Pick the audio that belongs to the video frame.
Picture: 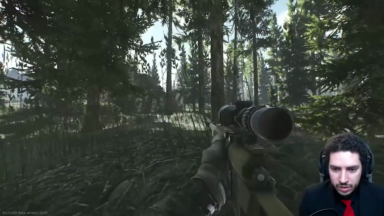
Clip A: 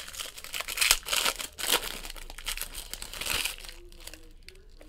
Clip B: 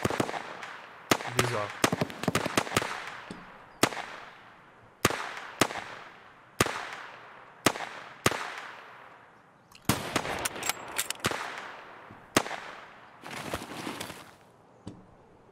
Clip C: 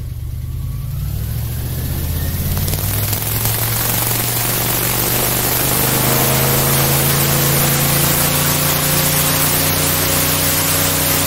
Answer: B